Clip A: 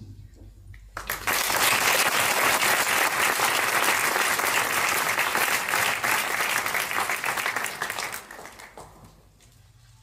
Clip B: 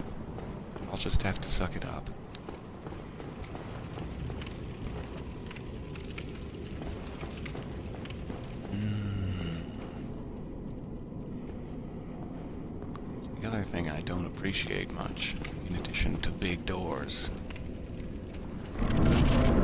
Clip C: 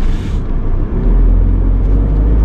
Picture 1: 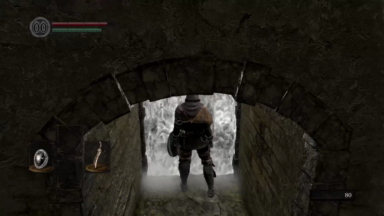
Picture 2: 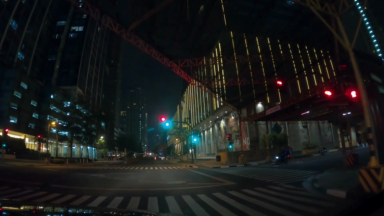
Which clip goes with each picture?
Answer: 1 B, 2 C